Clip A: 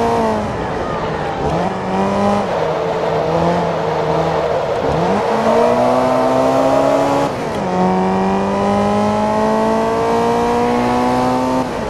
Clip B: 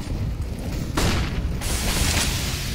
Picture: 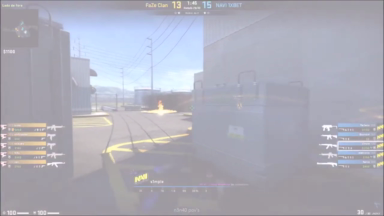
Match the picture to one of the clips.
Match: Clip B